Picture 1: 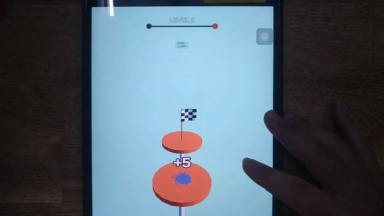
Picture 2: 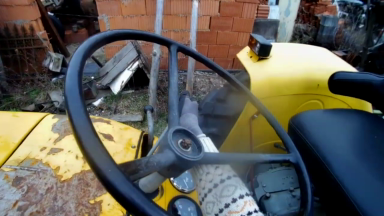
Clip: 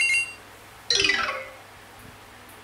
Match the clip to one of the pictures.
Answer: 1